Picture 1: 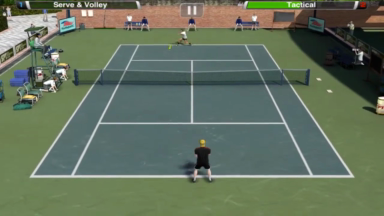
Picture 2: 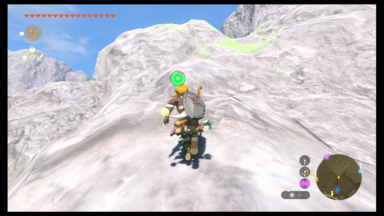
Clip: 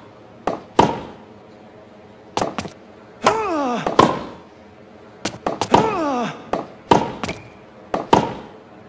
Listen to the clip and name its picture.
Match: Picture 1